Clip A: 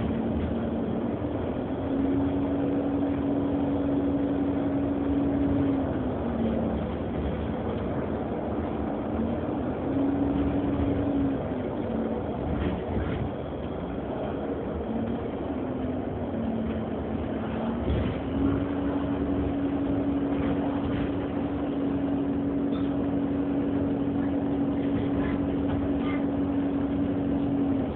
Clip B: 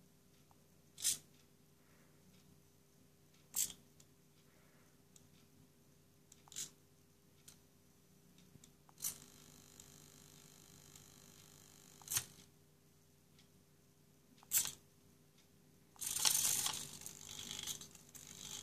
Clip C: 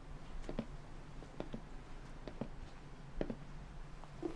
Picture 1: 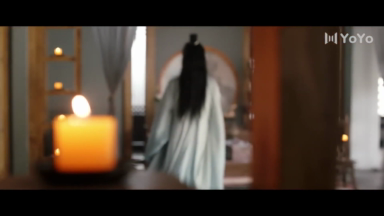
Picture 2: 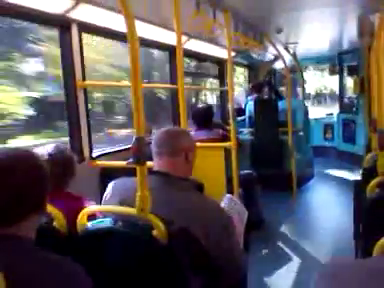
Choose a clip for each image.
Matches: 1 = C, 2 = A